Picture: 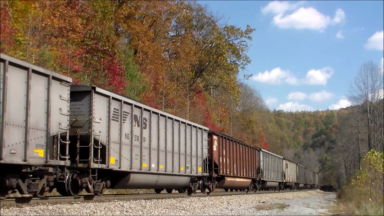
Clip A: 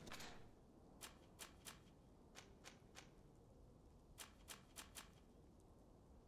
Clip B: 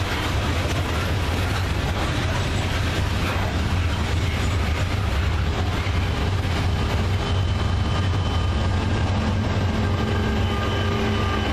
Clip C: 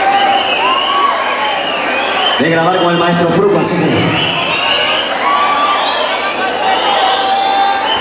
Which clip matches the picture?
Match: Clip B